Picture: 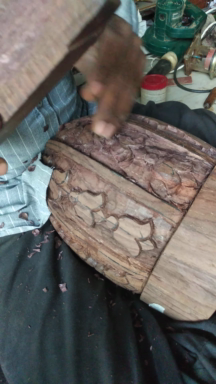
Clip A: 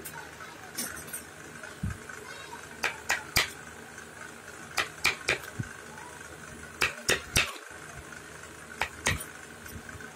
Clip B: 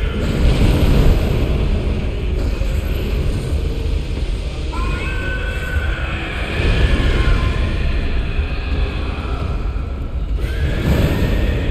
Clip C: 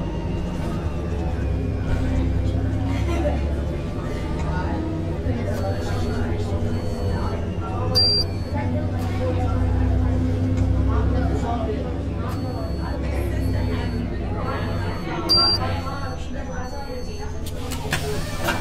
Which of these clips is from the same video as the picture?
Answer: A